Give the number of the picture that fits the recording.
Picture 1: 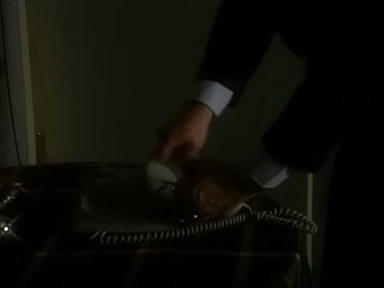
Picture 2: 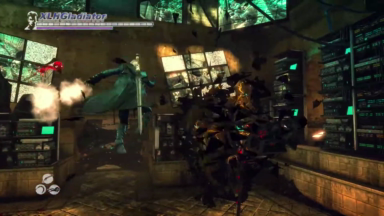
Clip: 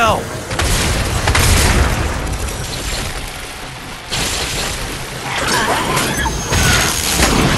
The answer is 2